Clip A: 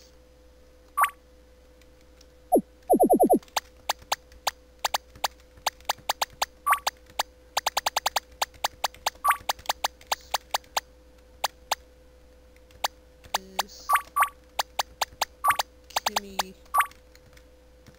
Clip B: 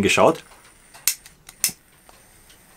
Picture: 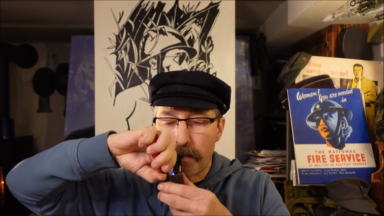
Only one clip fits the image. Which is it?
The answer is B